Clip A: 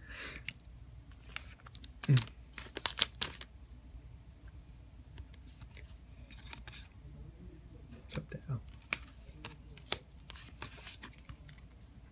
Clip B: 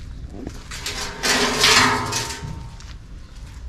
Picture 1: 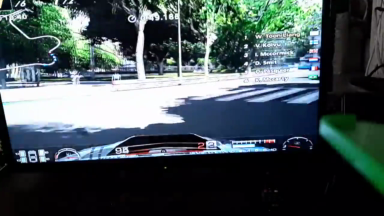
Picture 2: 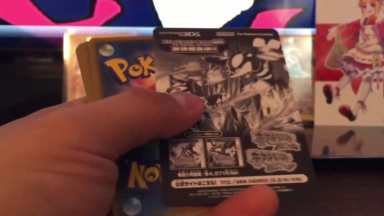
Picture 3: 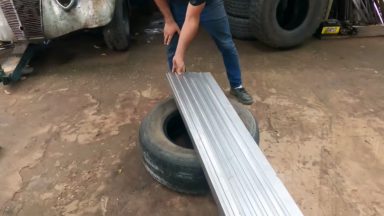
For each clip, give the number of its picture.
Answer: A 2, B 3